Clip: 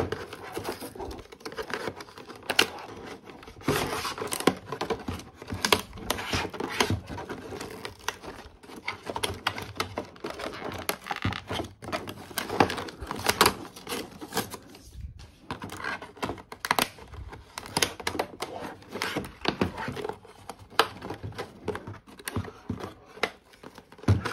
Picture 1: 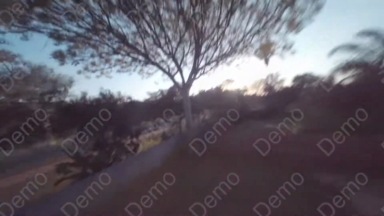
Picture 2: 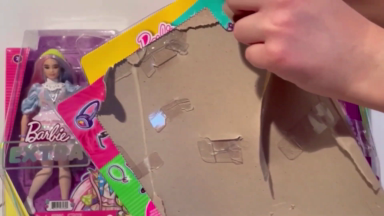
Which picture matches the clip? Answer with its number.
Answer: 2